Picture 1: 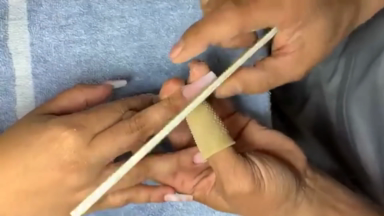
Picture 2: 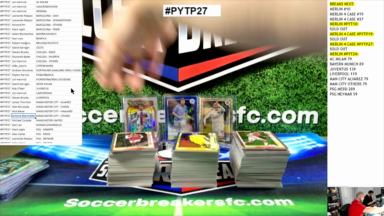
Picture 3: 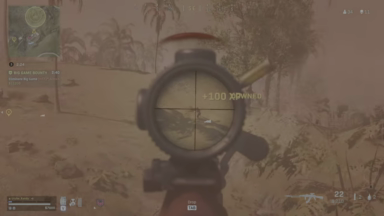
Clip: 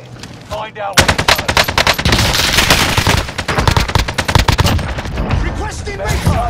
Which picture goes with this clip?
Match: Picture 3